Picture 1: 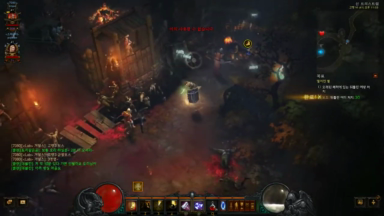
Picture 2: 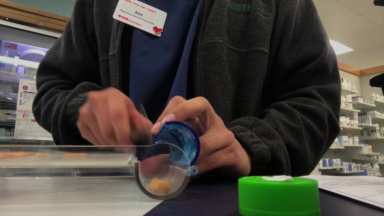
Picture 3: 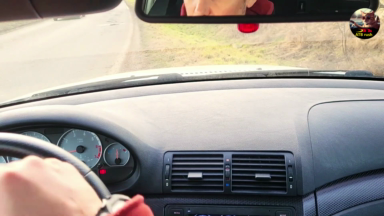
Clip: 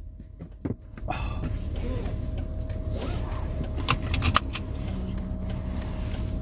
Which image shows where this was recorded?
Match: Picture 3